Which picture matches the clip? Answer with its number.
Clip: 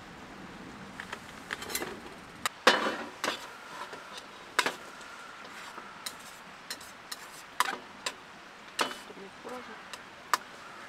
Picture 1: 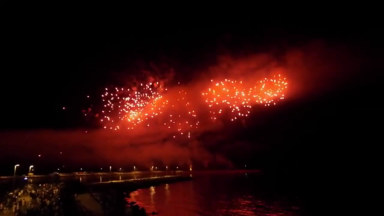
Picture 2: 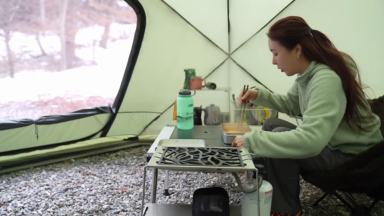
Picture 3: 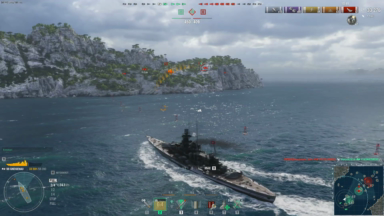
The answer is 2